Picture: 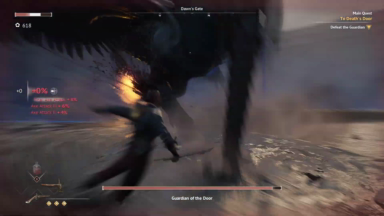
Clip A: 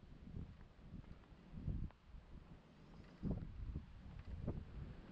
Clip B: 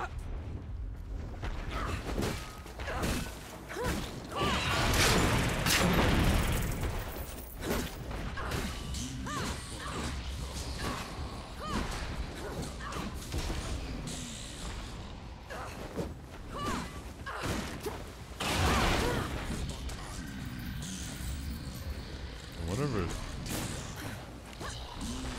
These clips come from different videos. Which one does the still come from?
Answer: B